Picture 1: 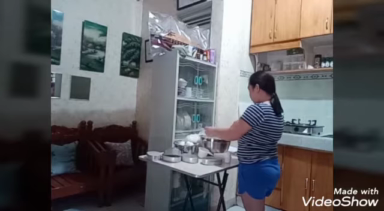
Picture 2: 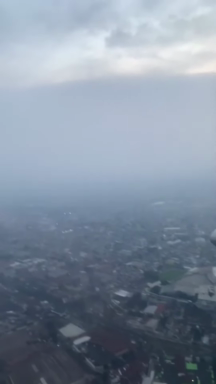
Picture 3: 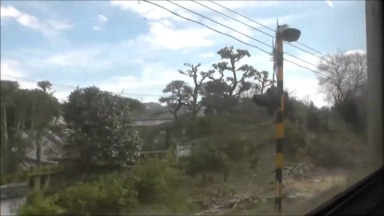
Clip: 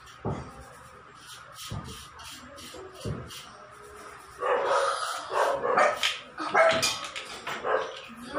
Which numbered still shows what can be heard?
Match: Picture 1